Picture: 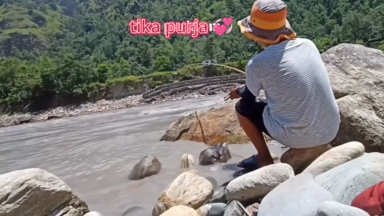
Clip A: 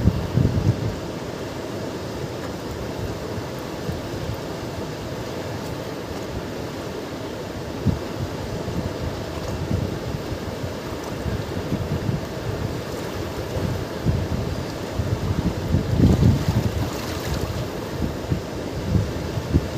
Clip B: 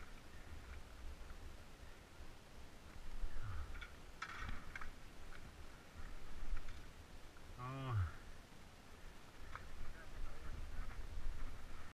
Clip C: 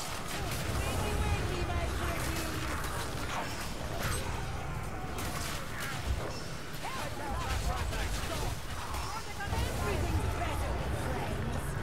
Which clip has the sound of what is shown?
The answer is A